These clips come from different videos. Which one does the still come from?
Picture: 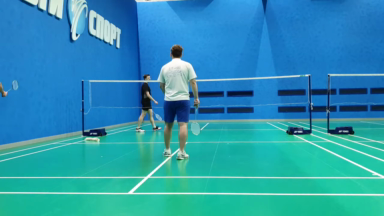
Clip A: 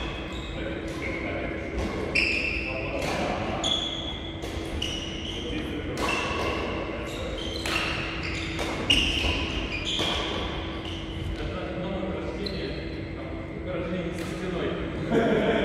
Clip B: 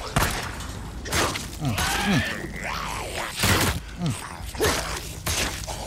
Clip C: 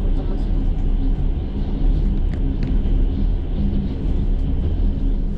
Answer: A